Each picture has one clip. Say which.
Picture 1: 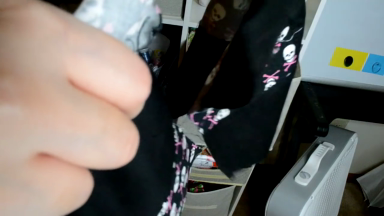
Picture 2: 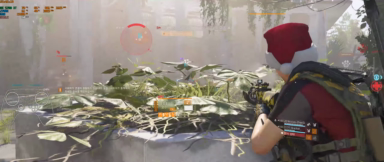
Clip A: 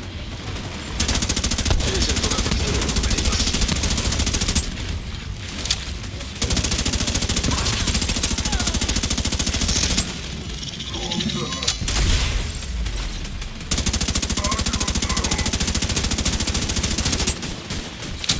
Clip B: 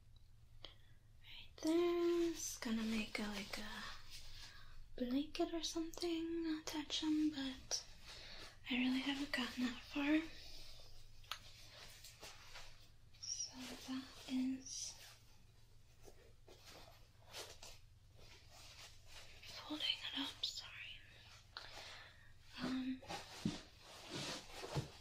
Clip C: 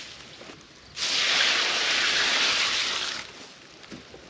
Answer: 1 B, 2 A